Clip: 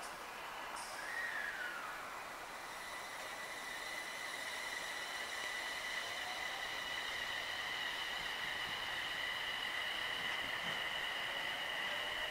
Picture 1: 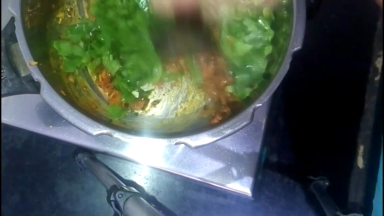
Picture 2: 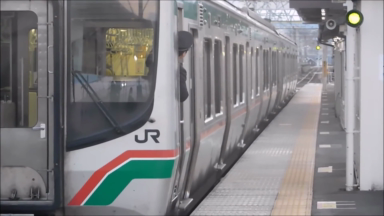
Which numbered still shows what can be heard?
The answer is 2